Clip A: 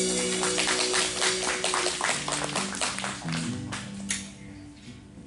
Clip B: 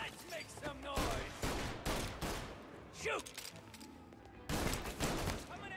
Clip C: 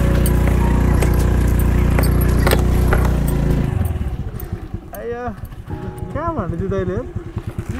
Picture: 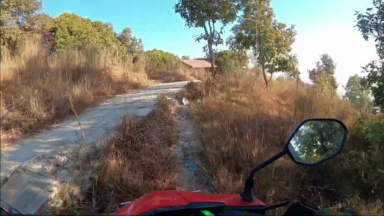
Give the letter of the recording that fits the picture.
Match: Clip C